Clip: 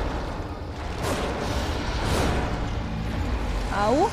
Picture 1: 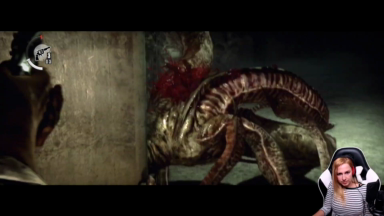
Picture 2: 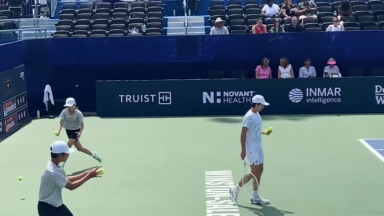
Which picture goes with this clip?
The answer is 1